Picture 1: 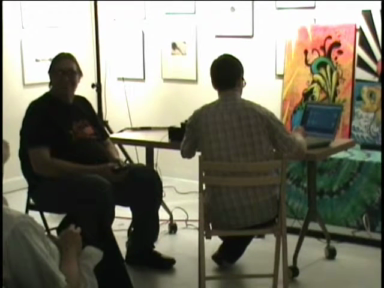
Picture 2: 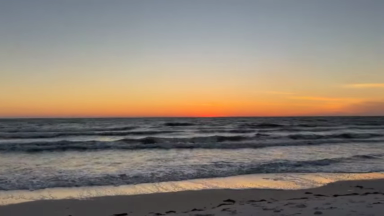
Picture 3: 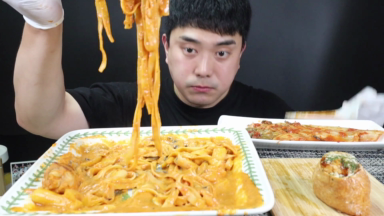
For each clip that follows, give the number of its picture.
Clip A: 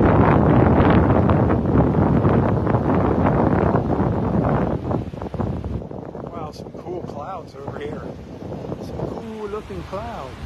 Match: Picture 2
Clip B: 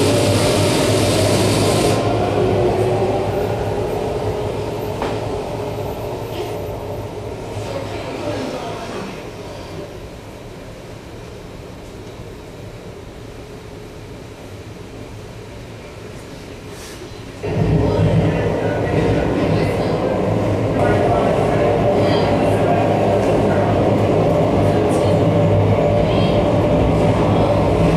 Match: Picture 1